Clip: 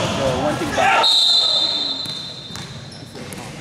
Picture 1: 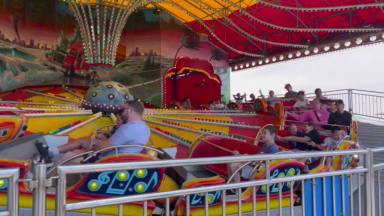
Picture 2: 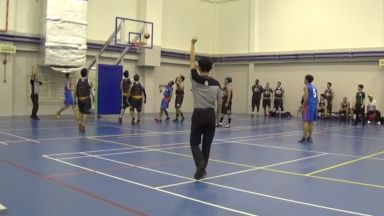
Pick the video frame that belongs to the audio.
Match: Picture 2